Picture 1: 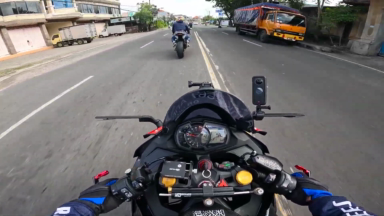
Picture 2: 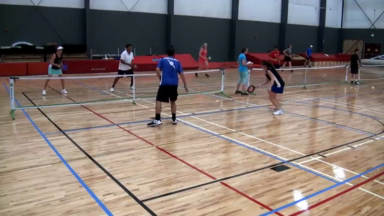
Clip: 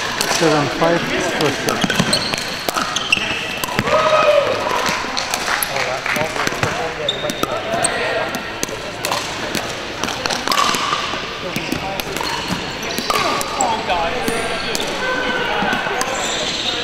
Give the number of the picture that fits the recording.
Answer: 2